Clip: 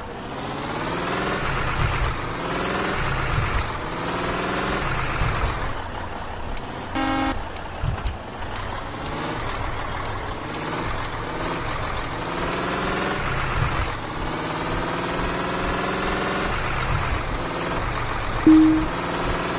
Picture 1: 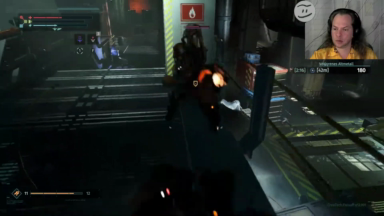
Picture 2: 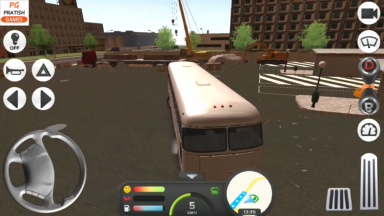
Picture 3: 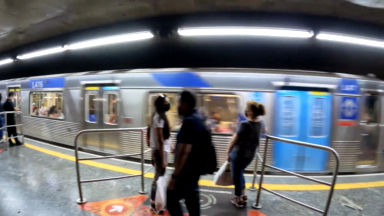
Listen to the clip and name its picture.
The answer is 2